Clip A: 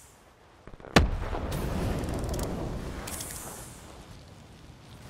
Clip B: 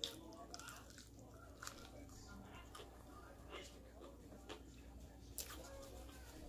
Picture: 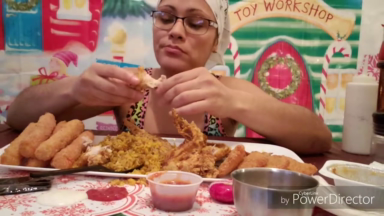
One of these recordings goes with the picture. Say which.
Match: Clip B